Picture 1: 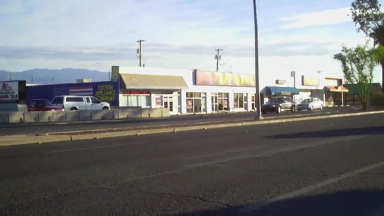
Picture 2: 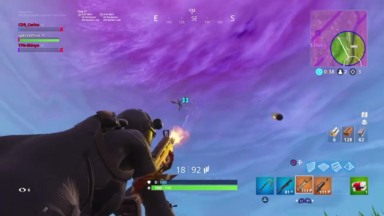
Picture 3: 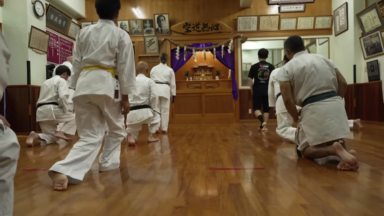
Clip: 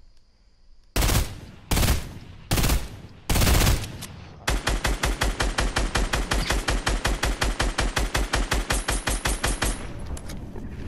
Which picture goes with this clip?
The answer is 2